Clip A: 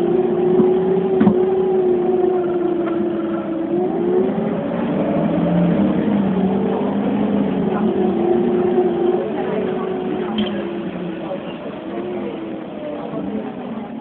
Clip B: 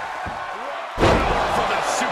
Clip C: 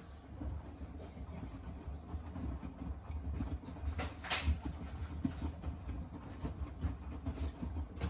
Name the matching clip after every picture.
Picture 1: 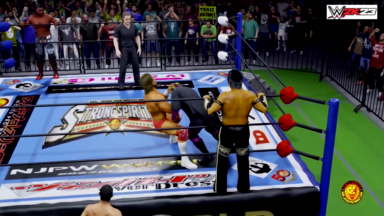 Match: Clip B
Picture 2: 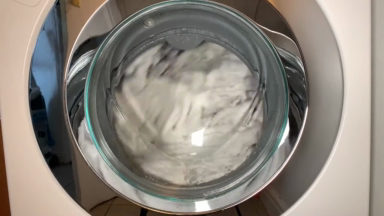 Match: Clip C